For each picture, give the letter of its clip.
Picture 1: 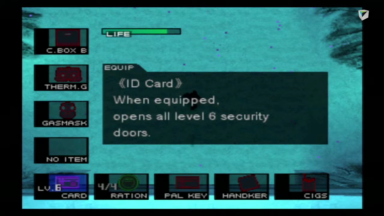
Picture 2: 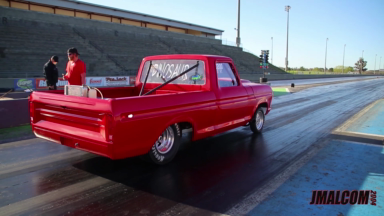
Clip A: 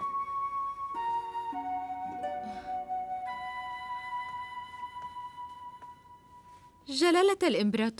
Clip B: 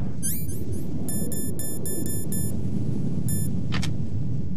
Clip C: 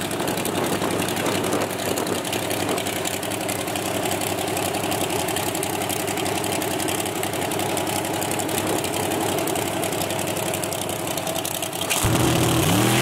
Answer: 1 B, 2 C